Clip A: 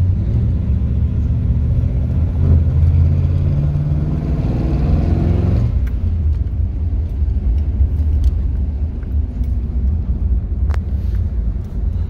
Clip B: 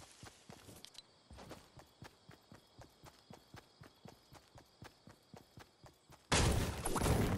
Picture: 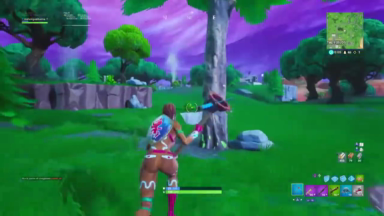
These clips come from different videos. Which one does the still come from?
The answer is B